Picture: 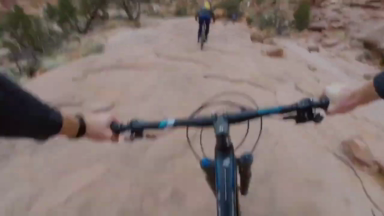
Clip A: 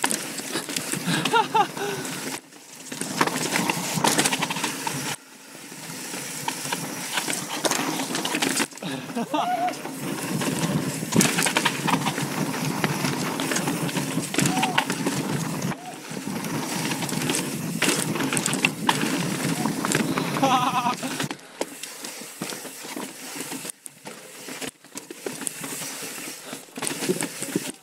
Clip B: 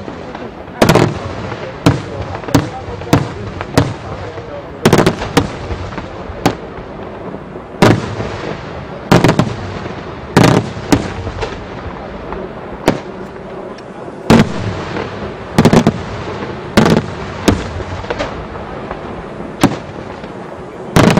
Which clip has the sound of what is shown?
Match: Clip A